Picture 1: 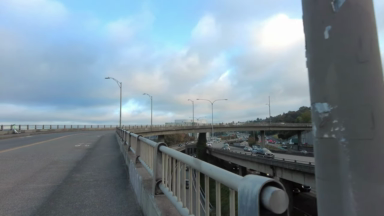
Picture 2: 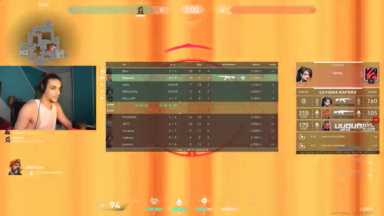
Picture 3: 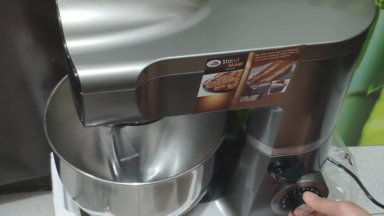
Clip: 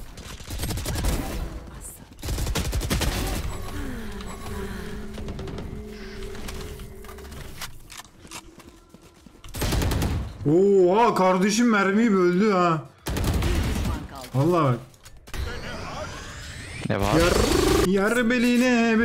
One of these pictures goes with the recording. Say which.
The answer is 2